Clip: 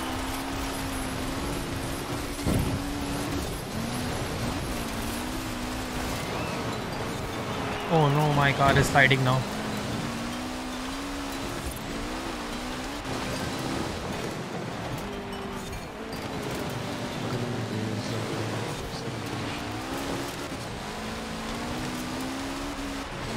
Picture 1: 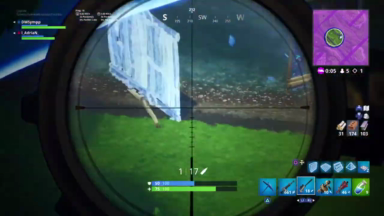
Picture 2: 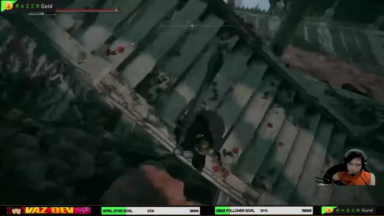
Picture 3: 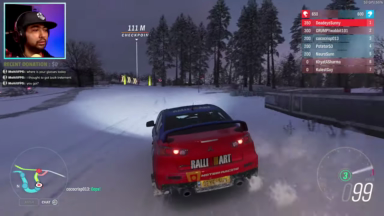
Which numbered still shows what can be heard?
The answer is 3